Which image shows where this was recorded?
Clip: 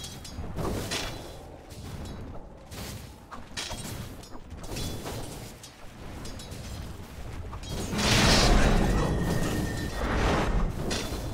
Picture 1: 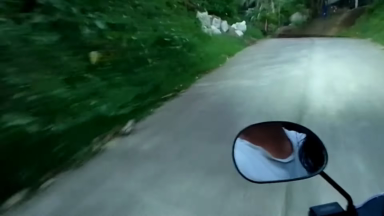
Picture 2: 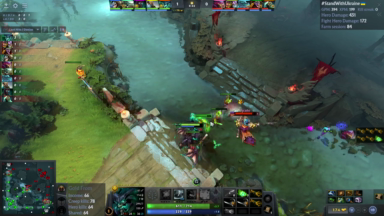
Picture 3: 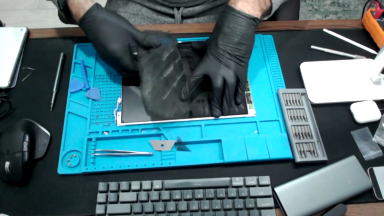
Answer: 2